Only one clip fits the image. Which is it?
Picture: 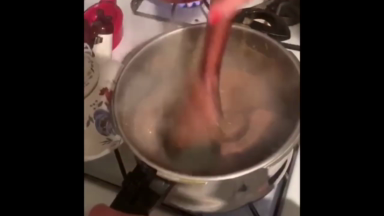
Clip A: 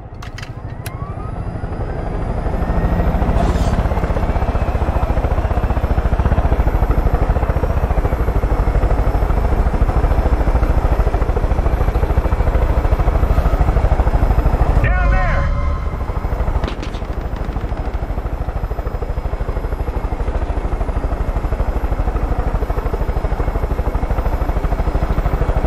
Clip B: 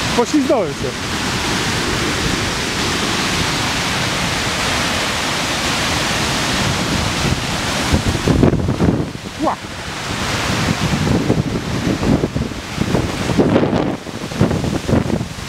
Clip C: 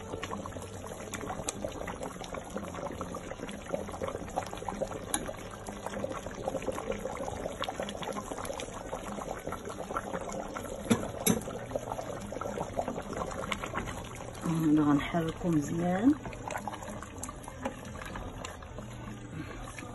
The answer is C